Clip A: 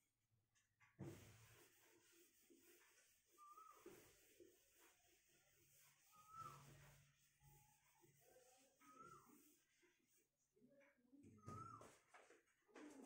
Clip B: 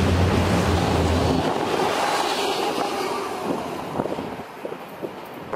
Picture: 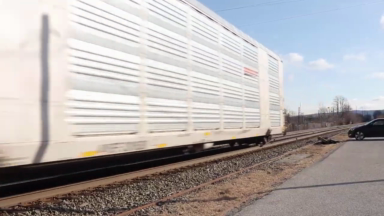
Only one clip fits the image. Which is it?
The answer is B